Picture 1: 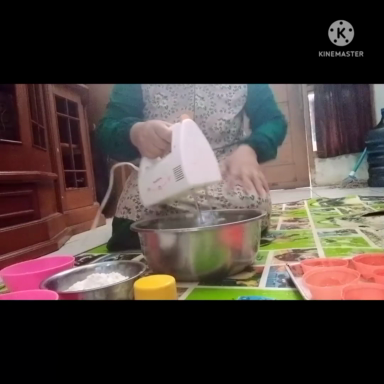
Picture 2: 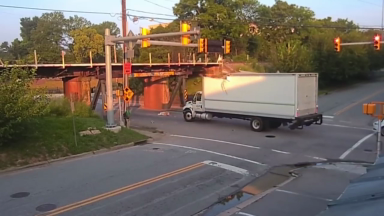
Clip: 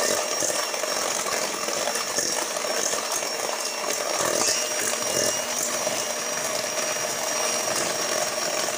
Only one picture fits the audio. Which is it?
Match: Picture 1